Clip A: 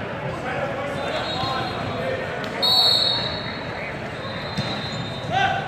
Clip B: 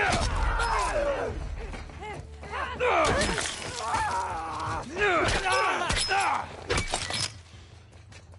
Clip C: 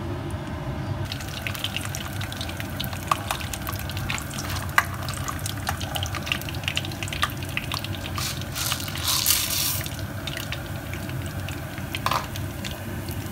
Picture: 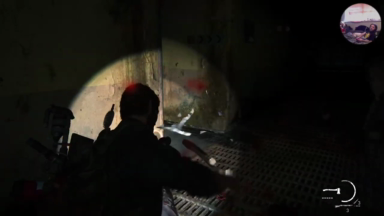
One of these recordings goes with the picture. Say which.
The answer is B